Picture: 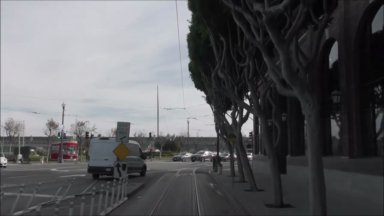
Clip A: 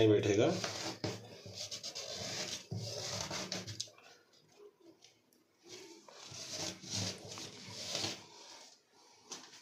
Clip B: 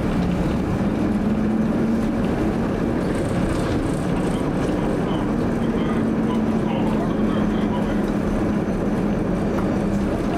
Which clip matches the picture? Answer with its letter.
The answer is B